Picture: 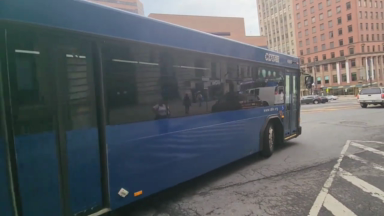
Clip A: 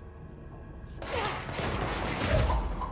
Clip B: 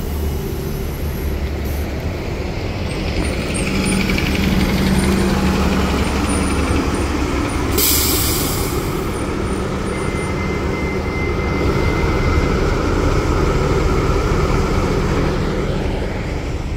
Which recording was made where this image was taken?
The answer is B